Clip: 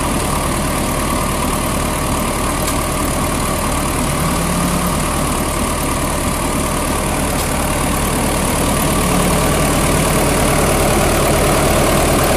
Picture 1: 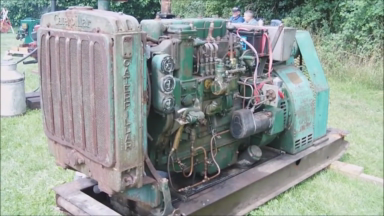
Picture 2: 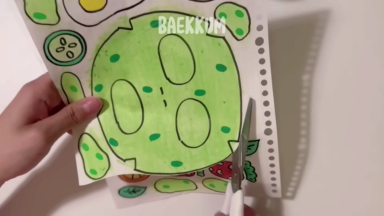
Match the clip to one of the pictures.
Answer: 1